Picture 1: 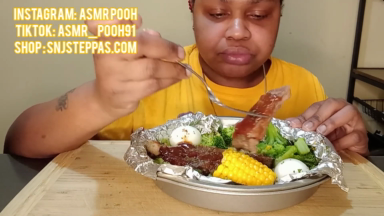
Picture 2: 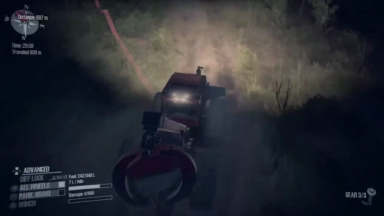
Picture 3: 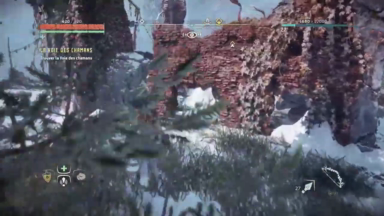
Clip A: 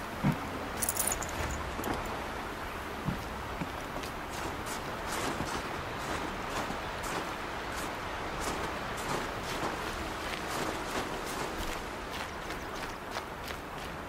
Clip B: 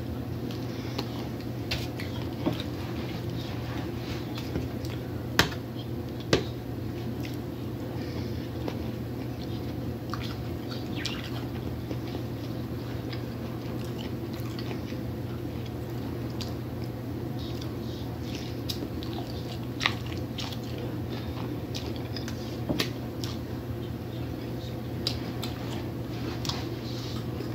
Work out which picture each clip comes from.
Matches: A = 3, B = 1